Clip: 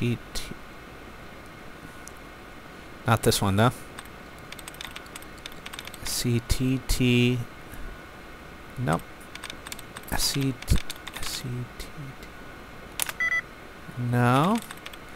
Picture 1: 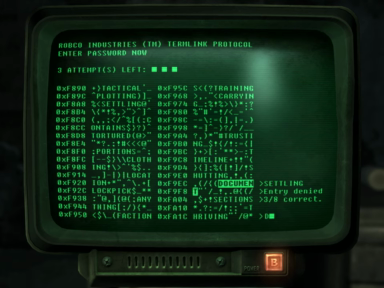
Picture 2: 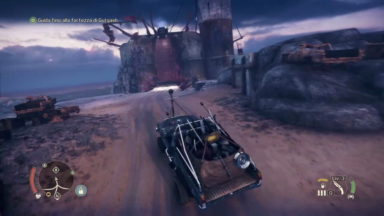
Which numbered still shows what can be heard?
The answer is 1